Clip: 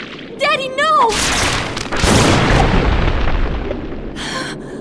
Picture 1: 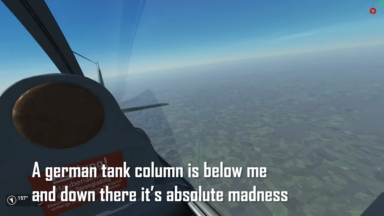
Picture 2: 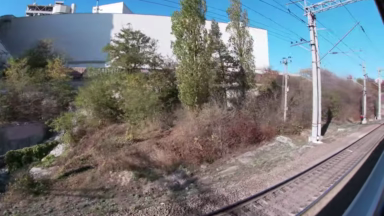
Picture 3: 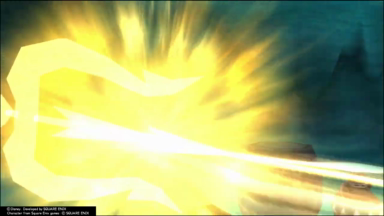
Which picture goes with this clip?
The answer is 3